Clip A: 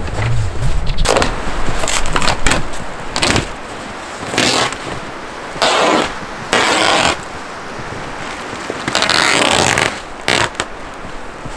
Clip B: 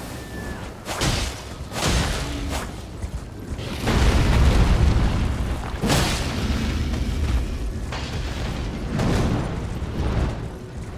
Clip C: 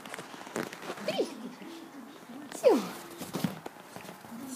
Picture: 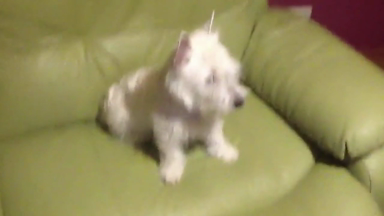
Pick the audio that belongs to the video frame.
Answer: C